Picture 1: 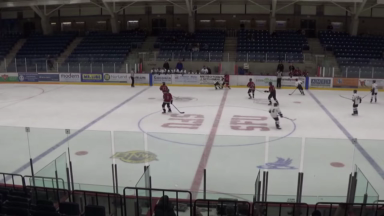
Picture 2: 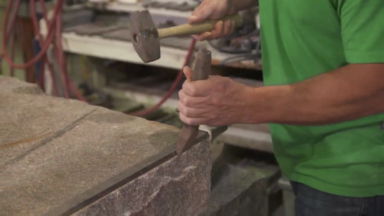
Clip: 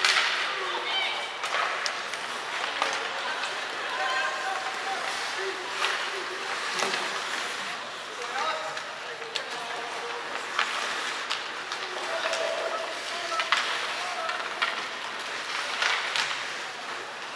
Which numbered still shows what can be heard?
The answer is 1